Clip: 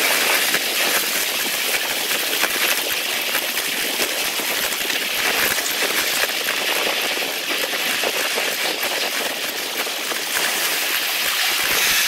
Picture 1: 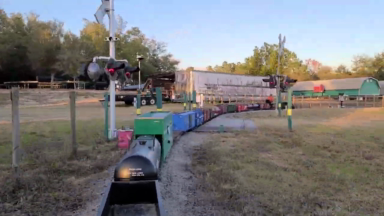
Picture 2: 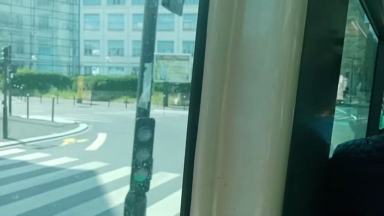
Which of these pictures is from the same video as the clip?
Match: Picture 1